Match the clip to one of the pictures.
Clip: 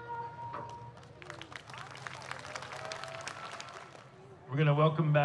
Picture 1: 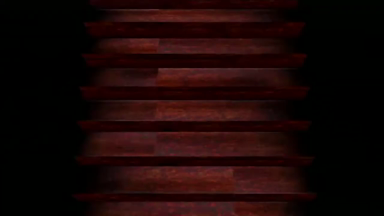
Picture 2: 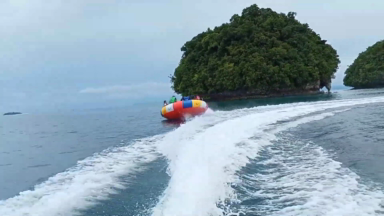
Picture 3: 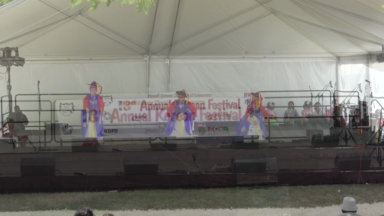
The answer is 3